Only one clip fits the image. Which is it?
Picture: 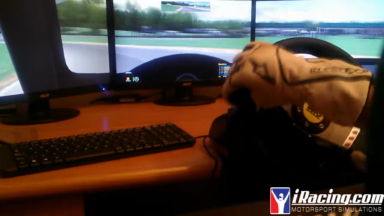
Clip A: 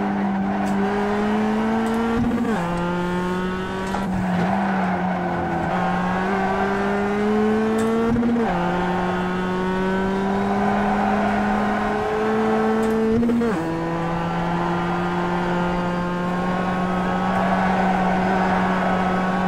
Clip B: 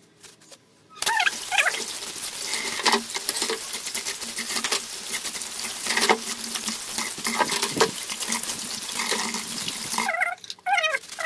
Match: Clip A